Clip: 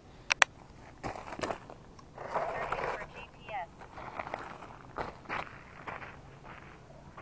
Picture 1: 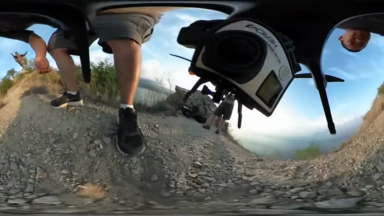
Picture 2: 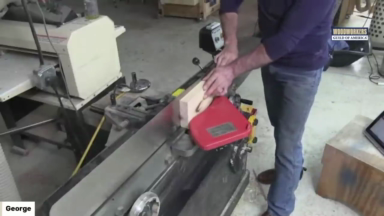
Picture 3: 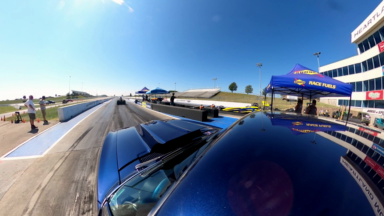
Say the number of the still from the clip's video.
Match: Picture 1